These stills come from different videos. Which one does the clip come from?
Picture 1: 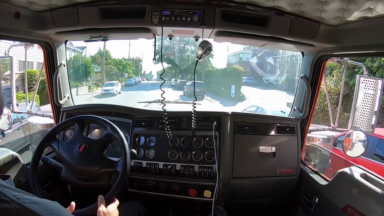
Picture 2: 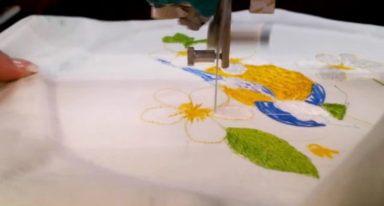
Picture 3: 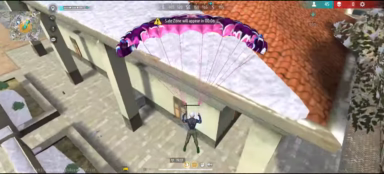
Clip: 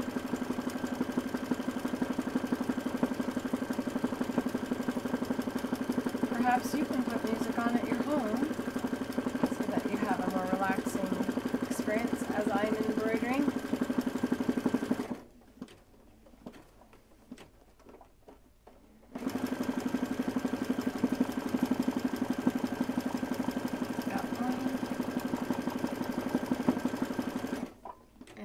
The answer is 2